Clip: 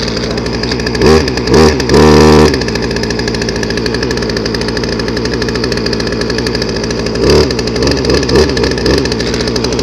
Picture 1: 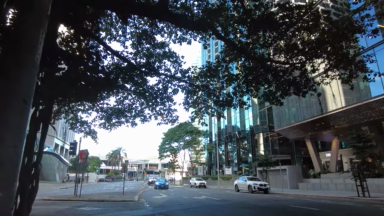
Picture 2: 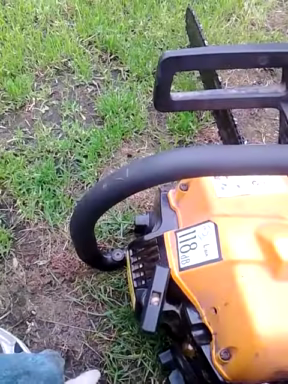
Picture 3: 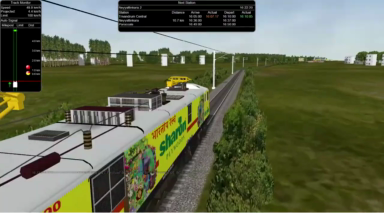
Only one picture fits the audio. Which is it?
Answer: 2